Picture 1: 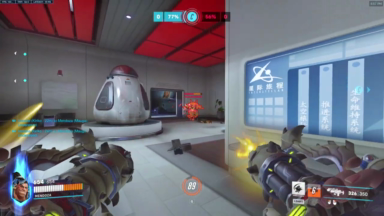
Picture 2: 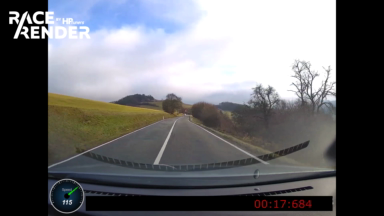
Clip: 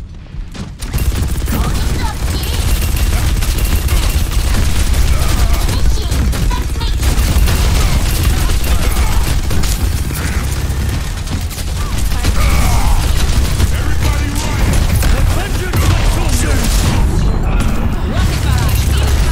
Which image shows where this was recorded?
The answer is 1